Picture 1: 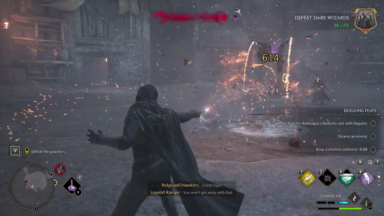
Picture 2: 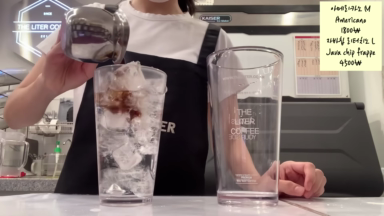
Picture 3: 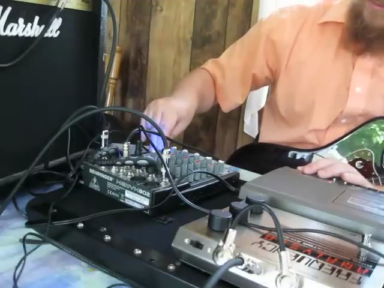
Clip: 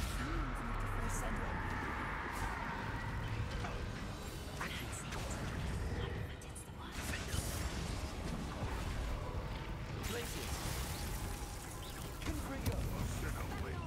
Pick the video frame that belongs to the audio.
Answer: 1